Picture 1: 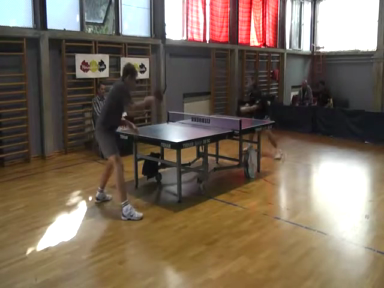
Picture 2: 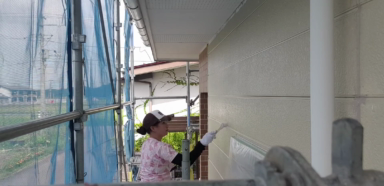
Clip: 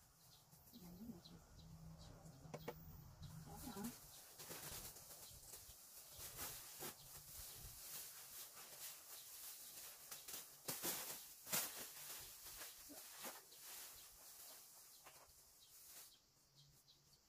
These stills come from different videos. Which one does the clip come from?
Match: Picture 2